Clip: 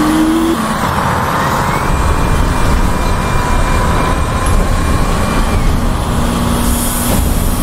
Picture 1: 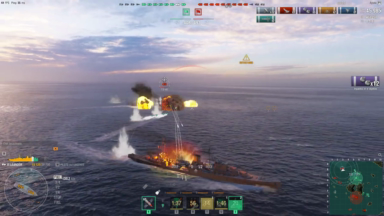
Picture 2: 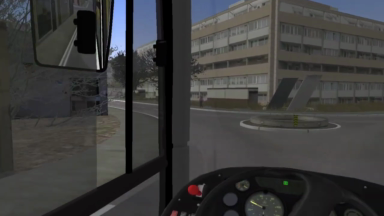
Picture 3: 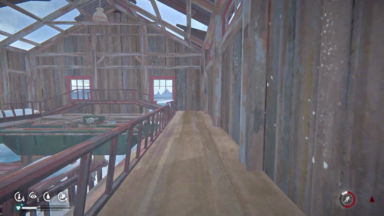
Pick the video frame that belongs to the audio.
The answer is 2